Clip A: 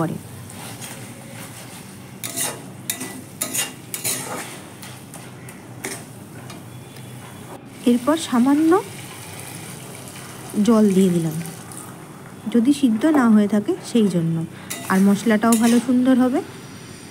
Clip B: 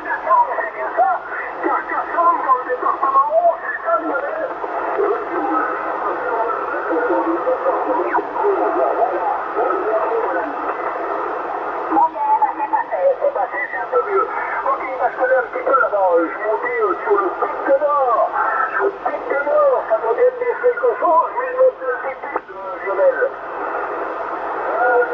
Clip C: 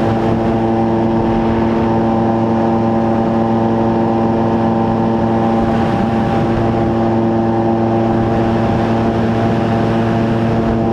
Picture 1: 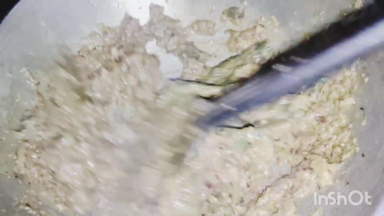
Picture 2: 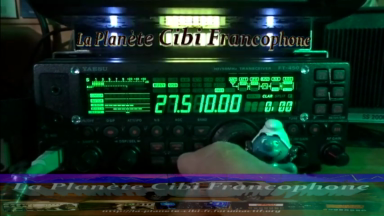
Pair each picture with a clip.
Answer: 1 A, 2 B